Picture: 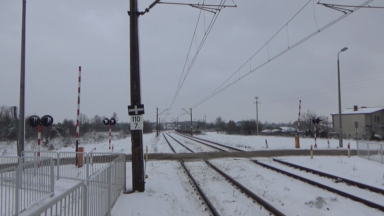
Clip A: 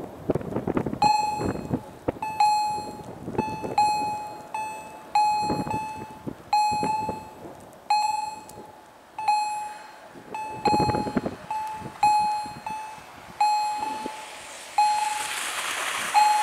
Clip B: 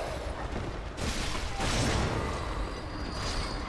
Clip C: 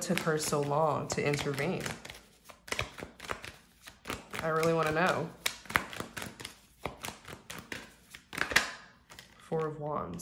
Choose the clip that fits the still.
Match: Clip A